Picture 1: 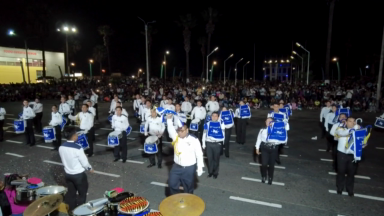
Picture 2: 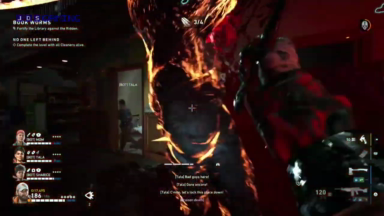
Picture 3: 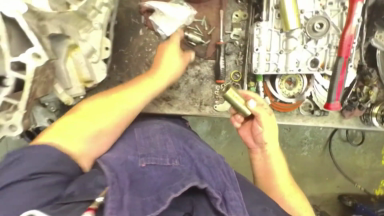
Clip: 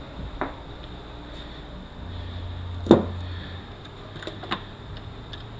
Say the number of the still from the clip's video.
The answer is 3